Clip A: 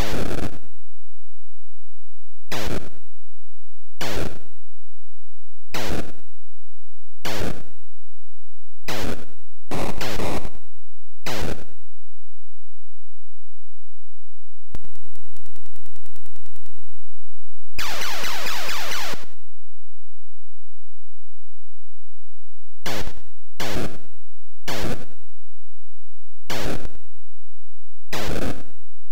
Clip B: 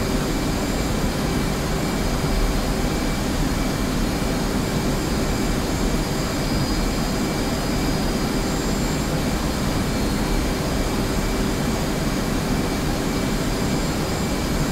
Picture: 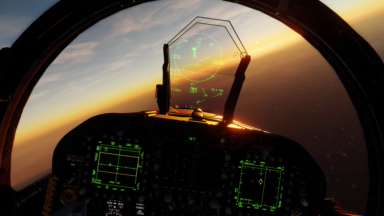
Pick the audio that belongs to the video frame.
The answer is B